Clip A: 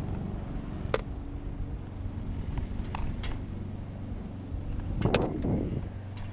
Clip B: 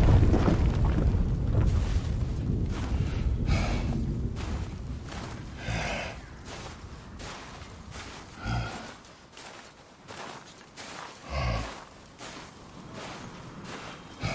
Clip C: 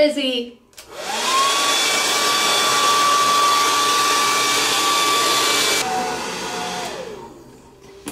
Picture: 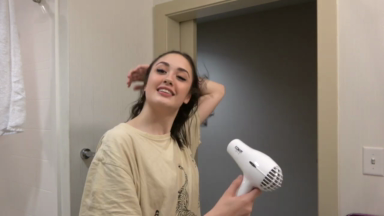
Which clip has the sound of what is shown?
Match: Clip C